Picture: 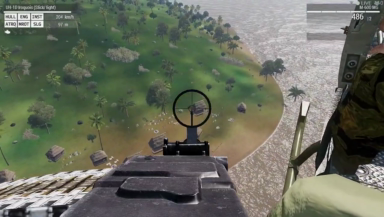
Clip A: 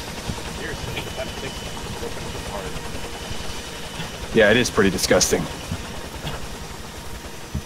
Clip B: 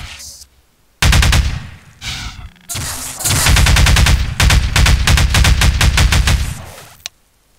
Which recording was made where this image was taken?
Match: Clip A